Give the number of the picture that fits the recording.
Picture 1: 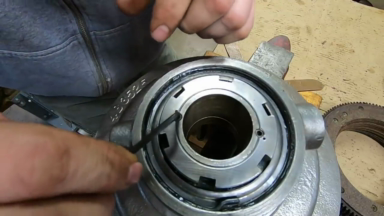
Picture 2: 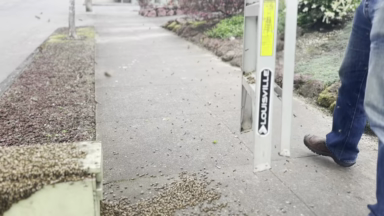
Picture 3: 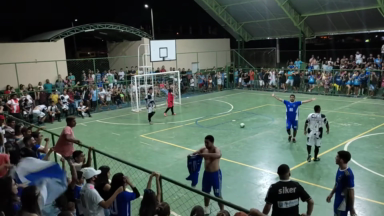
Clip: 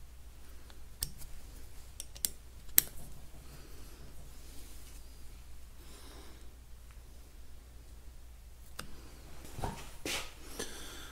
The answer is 1